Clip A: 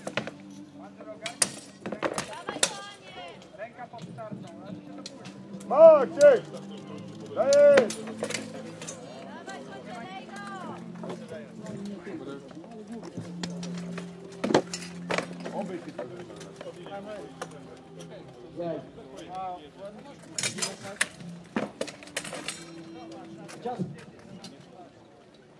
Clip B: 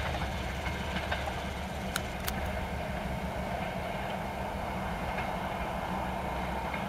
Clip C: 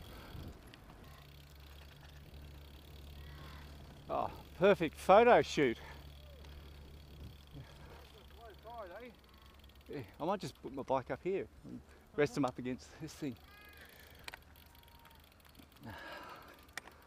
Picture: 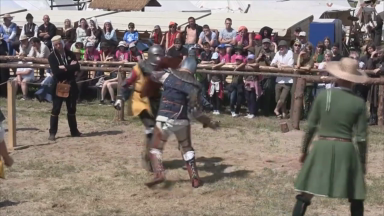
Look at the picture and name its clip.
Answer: A